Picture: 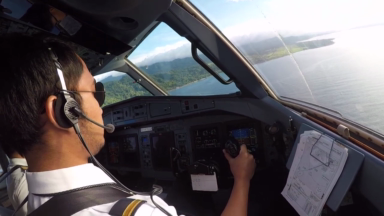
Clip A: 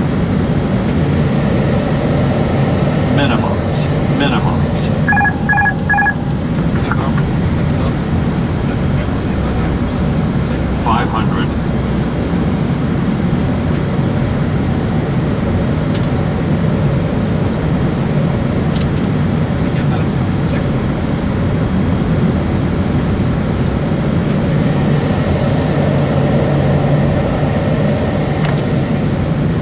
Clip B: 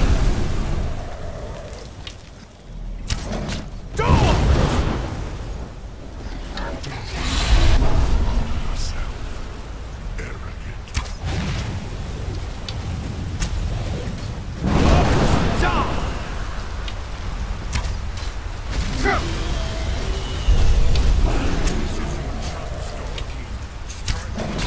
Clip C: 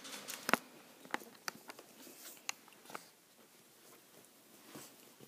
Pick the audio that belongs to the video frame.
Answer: A